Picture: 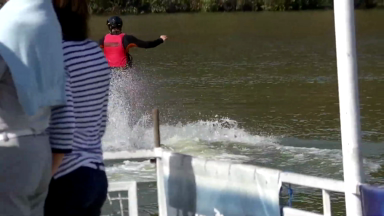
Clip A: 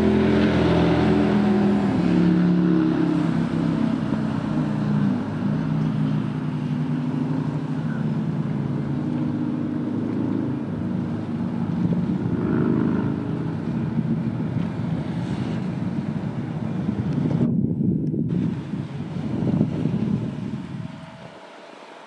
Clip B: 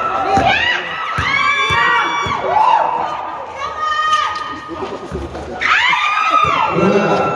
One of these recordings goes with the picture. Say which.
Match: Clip A